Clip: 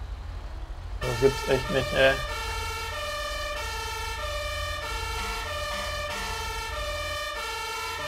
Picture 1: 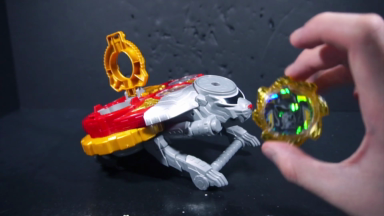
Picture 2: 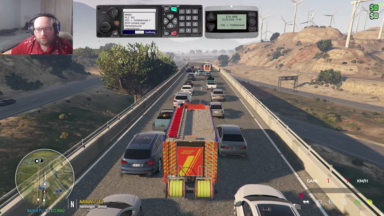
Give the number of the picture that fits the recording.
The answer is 2